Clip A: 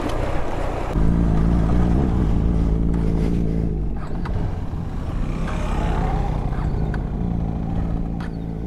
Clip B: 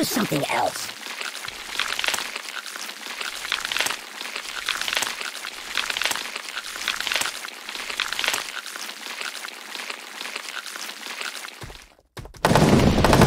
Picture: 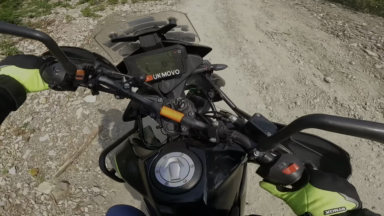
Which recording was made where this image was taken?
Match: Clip A